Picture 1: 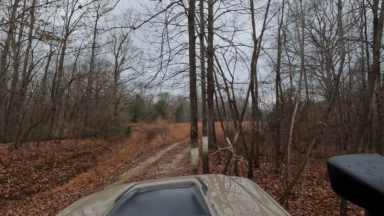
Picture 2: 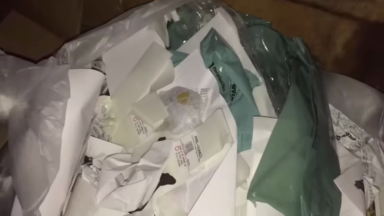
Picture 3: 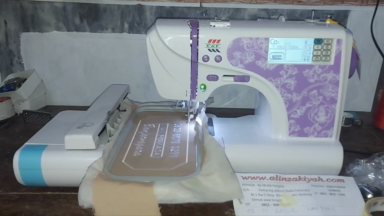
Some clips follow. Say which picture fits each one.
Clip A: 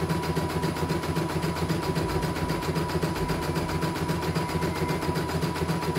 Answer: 3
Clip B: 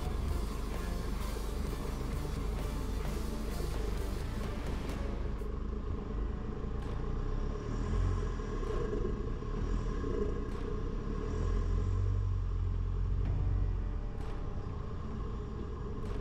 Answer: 1